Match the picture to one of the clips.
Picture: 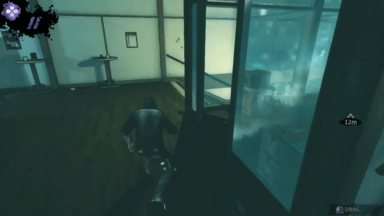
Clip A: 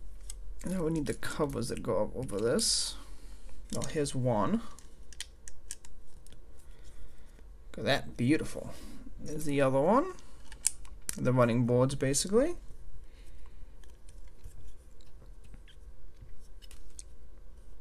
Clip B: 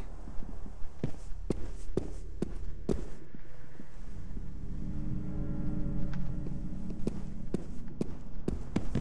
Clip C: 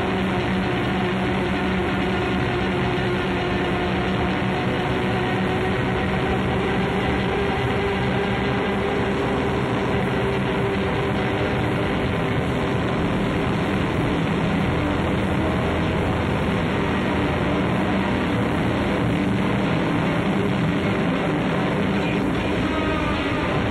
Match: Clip B